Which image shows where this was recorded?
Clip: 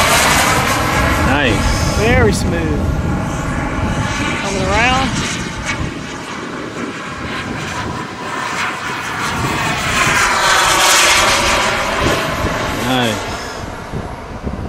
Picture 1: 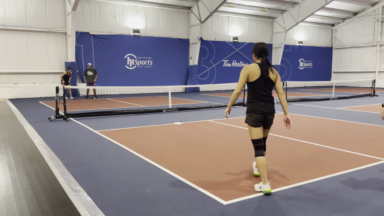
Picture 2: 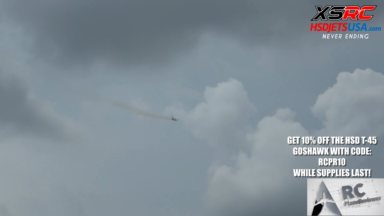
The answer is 2